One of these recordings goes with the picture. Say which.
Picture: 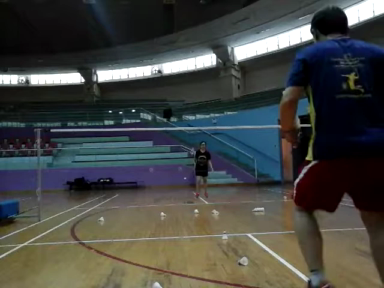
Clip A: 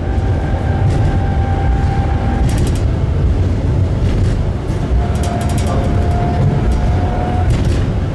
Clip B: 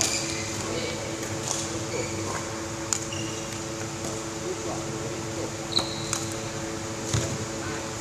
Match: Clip B